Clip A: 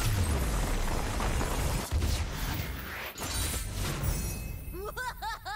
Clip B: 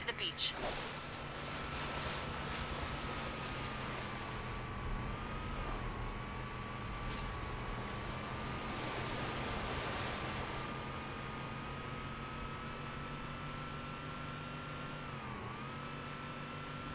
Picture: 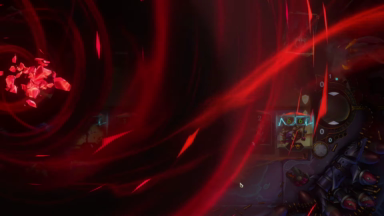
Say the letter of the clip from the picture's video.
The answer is A